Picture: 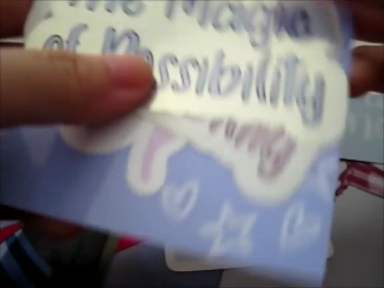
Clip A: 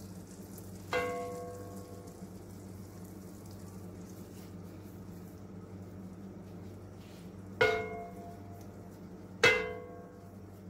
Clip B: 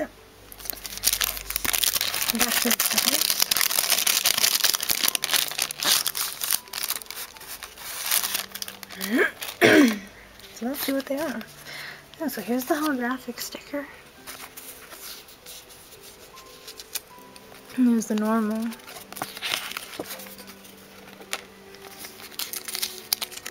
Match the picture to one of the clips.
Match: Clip B